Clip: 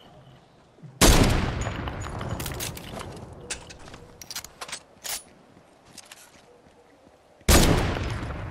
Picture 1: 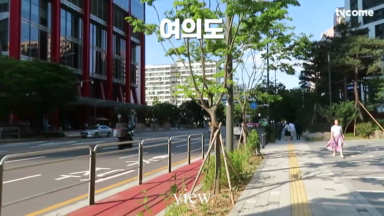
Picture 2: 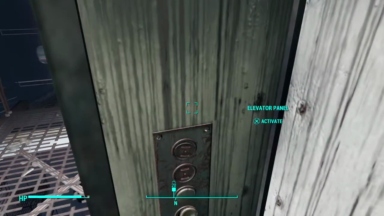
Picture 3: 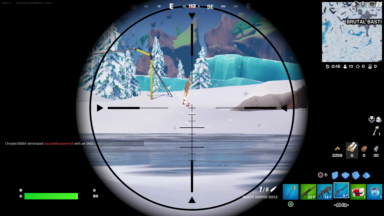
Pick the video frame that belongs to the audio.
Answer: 3